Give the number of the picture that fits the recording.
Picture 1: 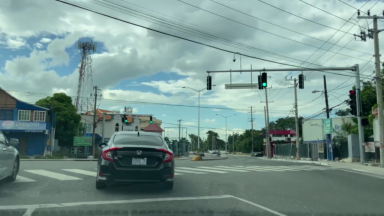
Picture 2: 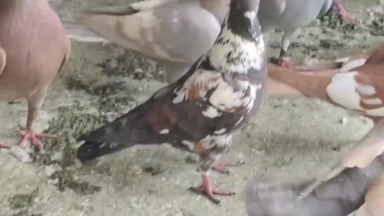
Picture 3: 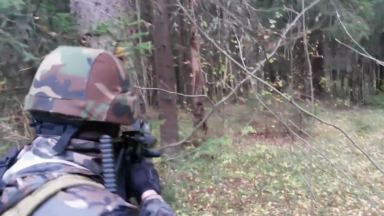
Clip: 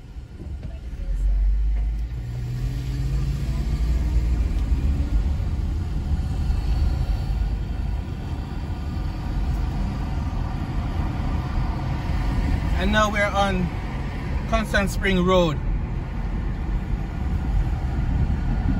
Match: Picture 1